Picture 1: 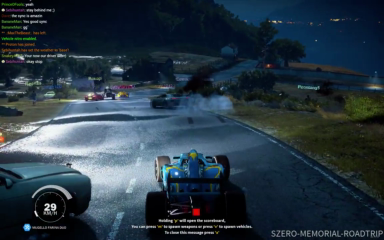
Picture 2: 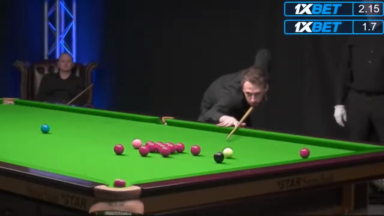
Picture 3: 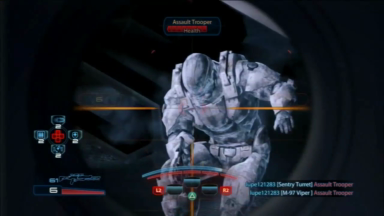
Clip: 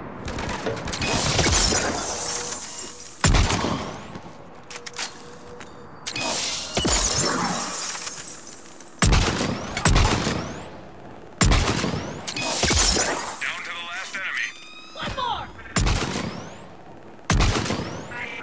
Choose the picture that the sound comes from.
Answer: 3